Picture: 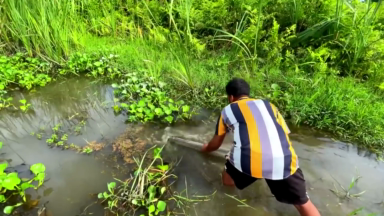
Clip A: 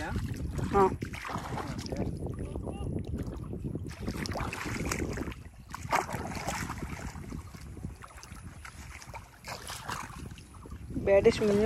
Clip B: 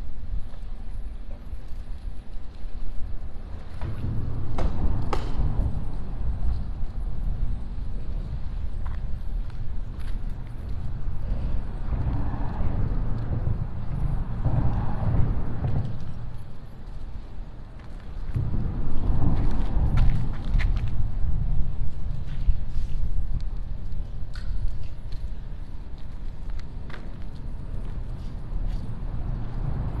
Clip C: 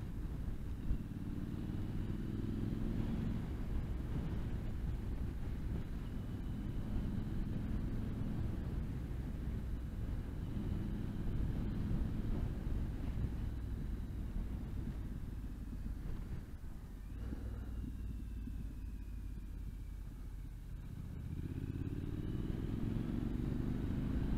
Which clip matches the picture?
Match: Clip A